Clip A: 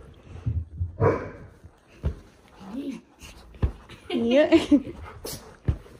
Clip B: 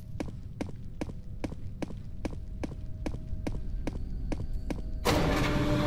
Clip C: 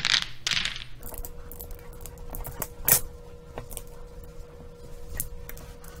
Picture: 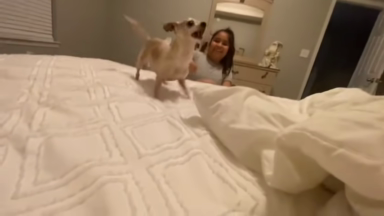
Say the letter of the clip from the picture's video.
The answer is A